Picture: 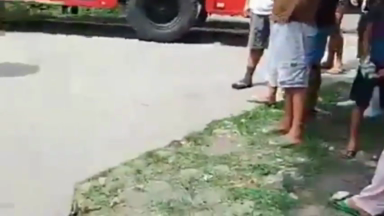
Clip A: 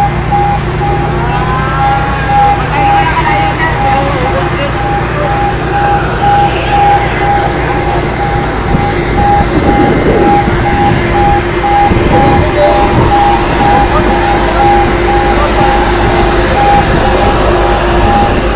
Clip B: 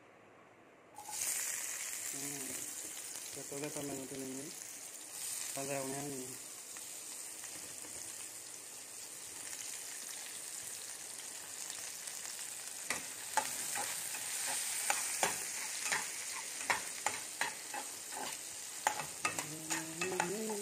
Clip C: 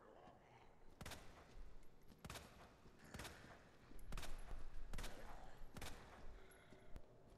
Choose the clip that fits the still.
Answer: A